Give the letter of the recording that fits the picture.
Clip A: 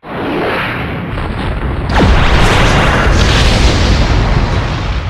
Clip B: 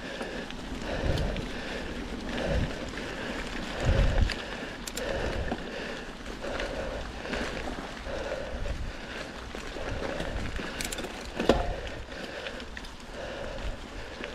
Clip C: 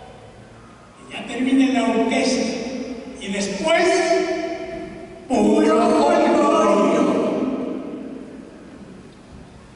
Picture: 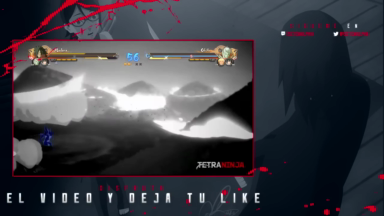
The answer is A